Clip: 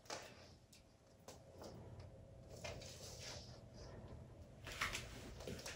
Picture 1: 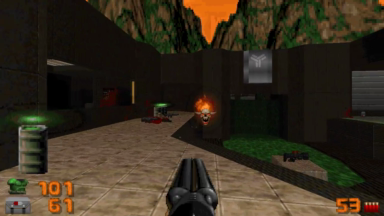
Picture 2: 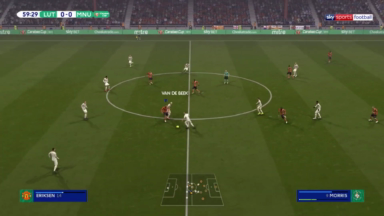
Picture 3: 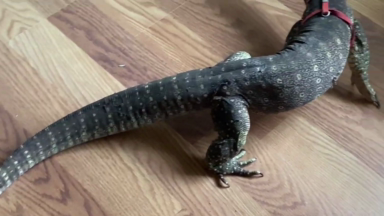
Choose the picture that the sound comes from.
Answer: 3